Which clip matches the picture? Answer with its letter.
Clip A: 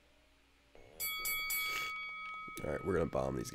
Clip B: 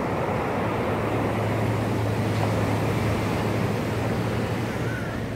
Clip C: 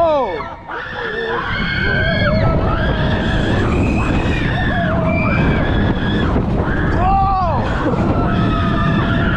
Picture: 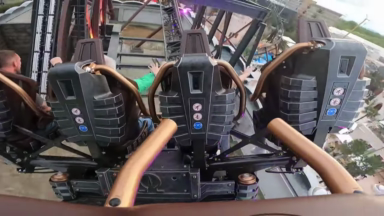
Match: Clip C